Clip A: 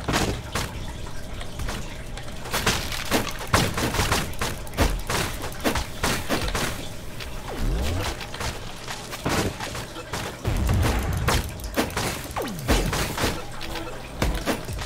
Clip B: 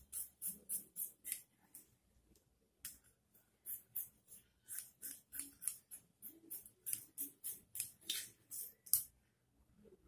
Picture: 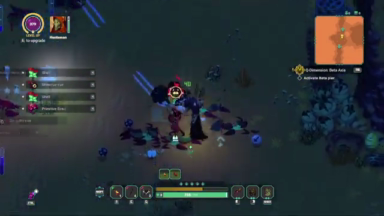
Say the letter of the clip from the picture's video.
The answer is A